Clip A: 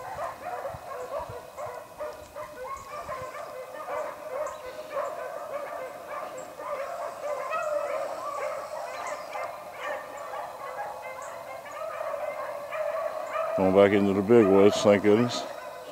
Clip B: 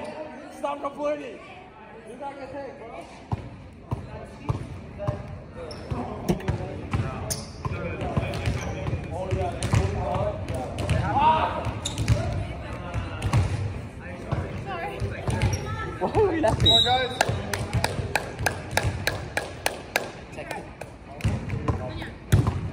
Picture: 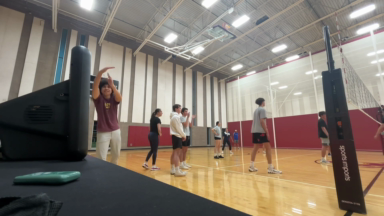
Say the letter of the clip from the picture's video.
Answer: B